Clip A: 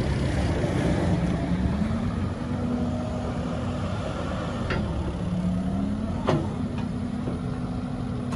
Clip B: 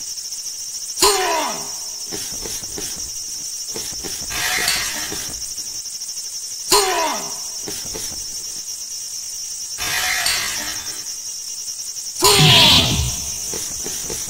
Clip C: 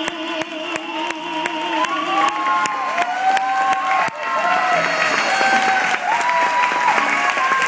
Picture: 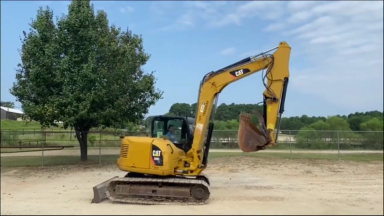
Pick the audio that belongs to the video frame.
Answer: A